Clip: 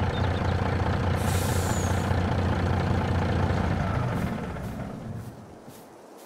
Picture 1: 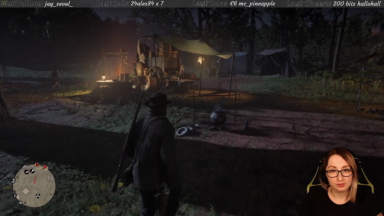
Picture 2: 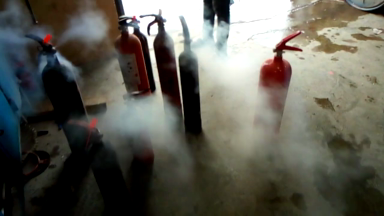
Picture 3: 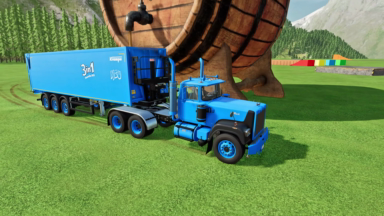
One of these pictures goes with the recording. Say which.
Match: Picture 3